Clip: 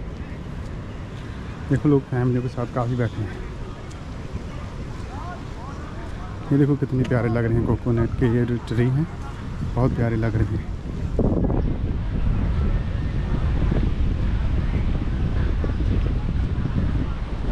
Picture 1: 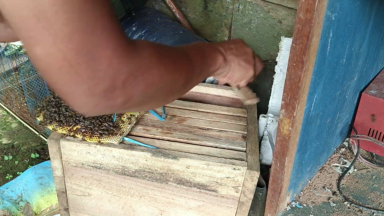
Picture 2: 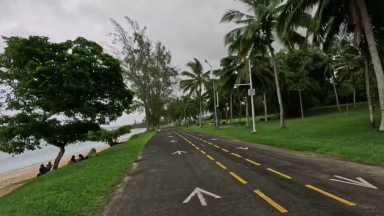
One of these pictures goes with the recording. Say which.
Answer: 2